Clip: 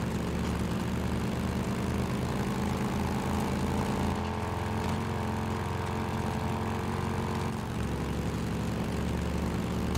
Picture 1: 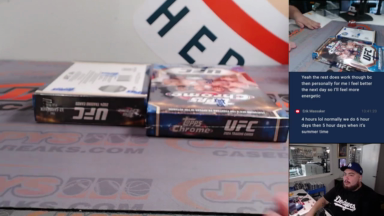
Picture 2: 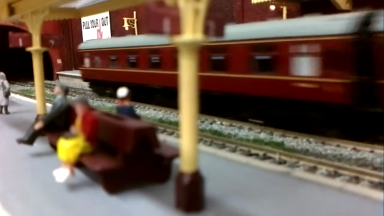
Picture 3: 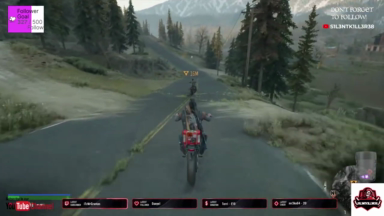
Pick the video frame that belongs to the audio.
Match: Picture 3